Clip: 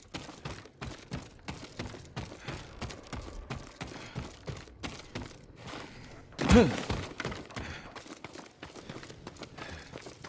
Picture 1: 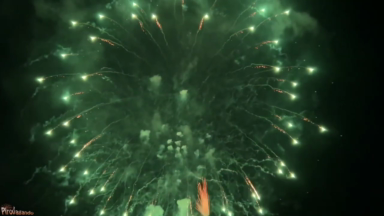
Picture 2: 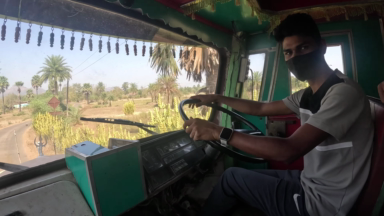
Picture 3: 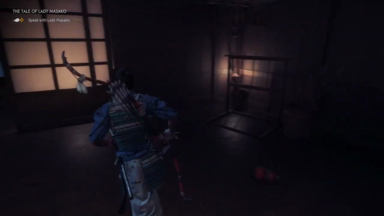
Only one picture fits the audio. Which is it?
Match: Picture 3